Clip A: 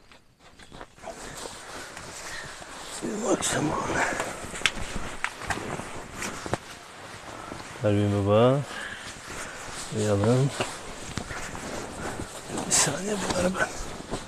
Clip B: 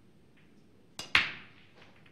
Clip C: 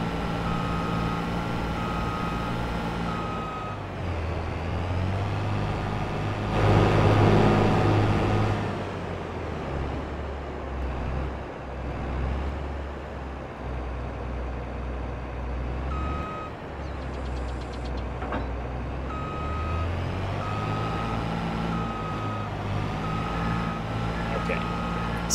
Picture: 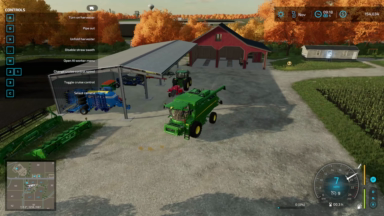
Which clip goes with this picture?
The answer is C